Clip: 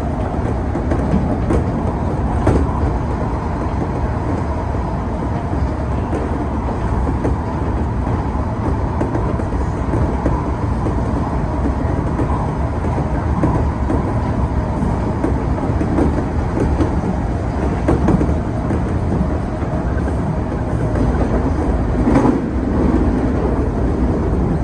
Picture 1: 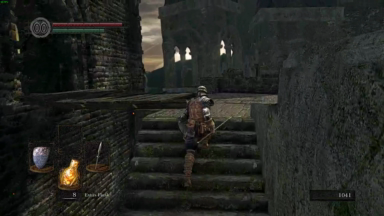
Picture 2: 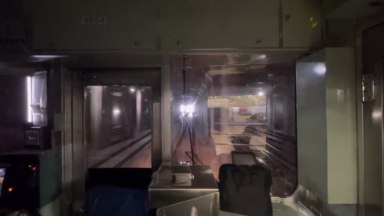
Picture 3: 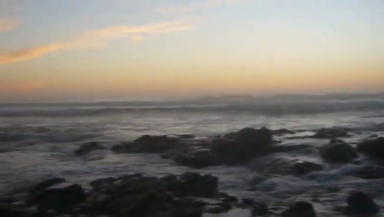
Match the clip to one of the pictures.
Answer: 2